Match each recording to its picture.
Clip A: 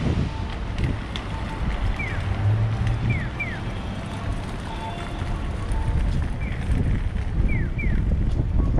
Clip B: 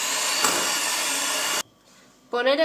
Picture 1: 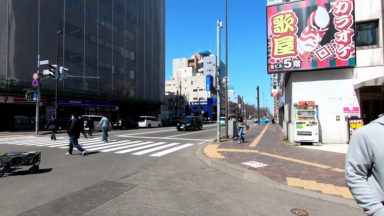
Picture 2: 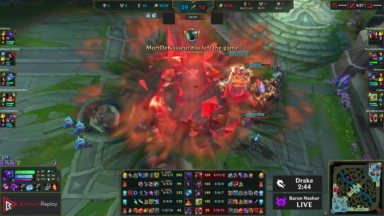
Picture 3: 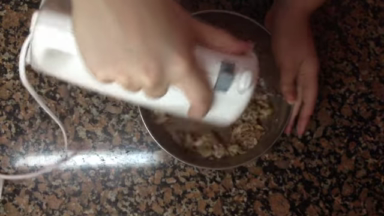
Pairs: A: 1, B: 3